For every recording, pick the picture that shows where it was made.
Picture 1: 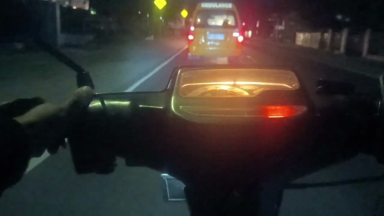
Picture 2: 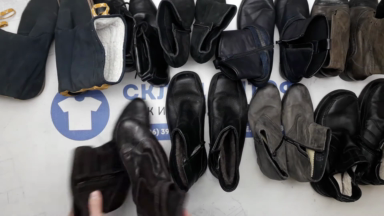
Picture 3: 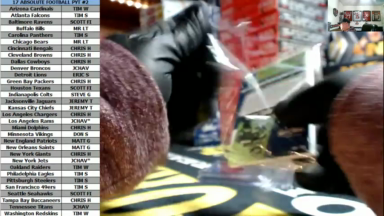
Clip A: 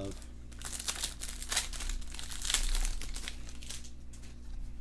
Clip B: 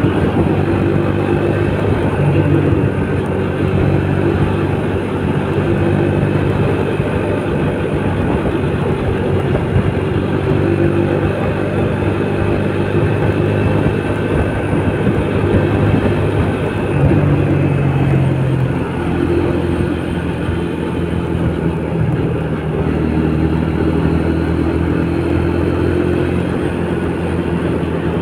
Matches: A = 3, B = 1